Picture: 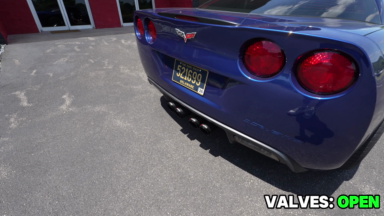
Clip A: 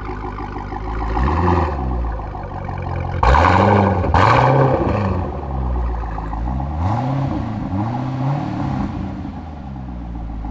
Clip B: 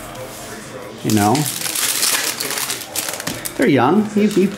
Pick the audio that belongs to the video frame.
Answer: A